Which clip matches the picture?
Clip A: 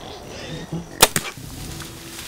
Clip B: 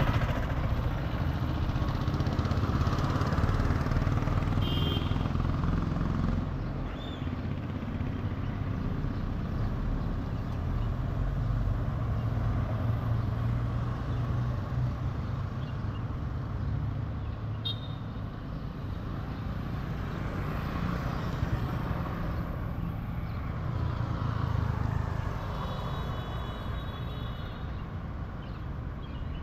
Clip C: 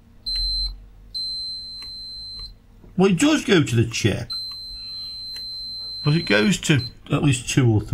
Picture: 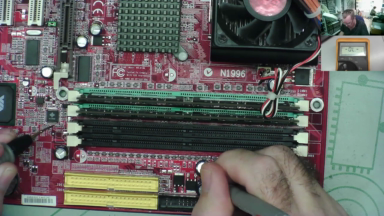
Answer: C